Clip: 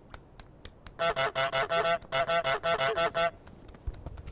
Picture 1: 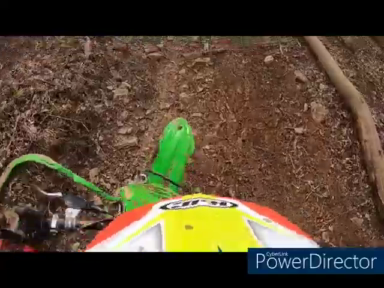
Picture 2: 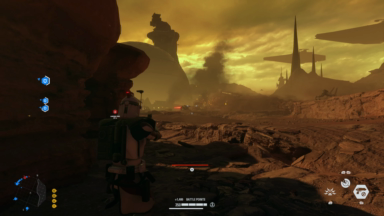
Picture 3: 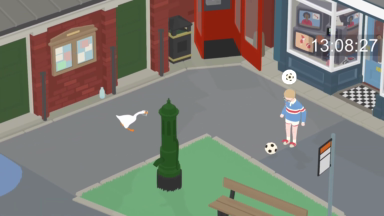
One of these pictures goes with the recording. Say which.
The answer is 3